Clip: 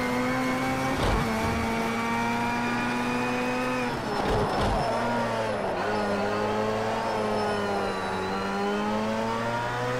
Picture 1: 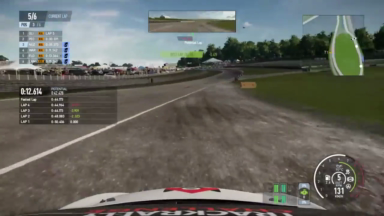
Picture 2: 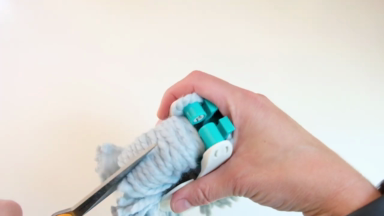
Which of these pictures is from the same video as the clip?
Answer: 1